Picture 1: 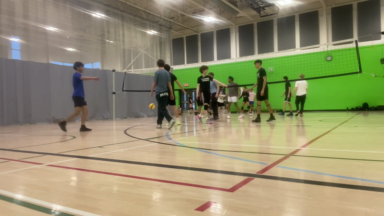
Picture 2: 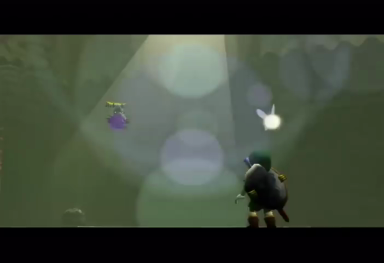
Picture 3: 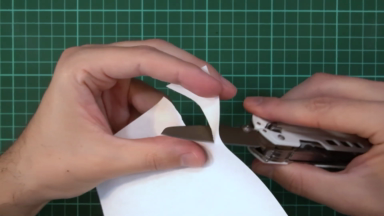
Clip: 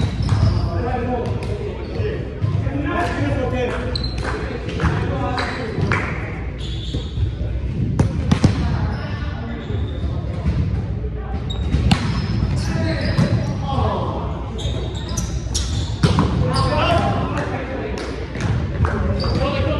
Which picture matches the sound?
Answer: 1